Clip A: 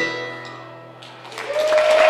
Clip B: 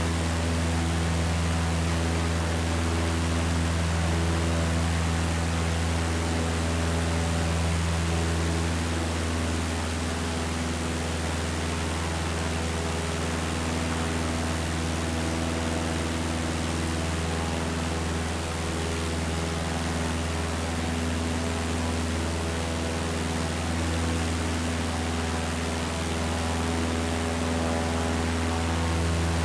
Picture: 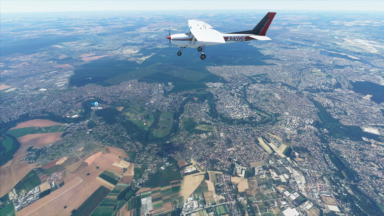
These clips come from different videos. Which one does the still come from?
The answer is B